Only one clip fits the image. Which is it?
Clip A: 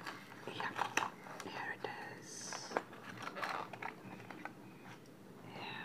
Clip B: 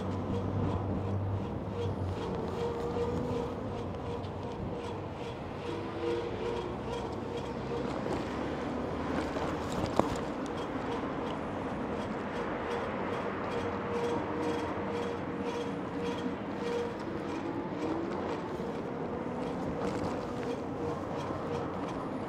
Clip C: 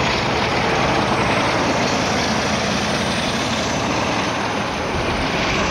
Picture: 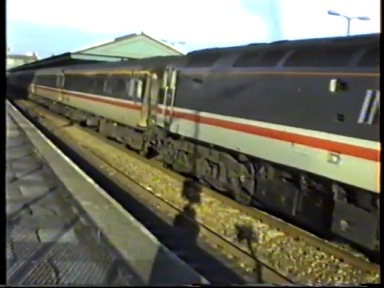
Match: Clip C